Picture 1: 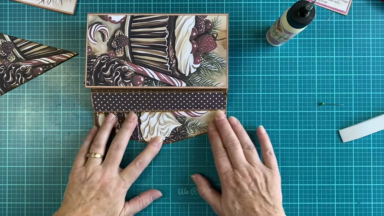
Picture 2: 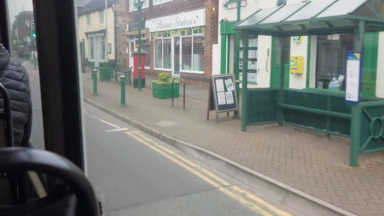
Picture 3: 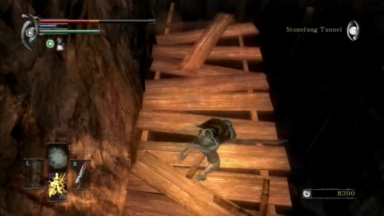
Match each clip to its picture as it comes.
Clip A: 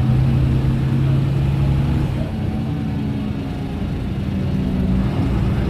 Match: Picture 2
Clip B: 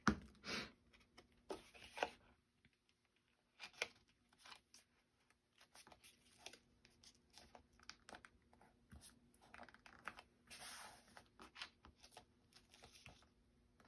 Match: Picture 1